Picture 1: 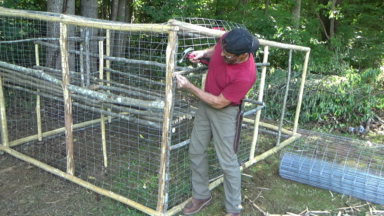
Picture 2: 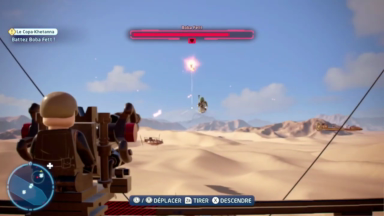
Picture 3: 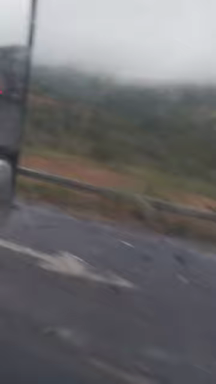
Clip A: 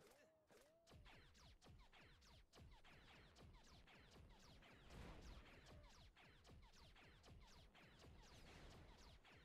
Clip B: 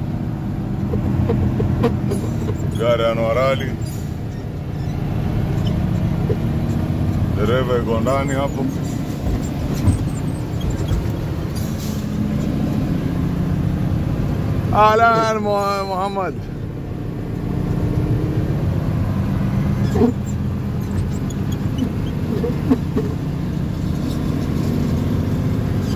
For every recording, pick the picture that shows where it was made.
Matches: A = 2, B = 3